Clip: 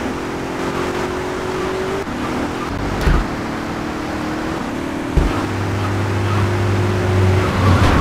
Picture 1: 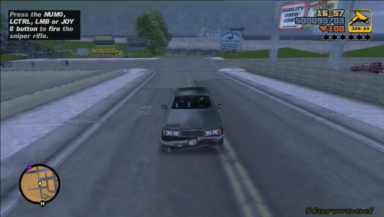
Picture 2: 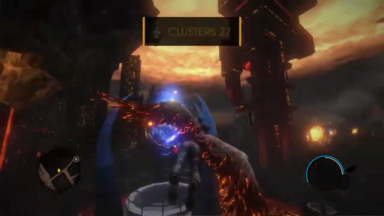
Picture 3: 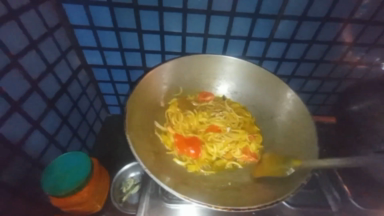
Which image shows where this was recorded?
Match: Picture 1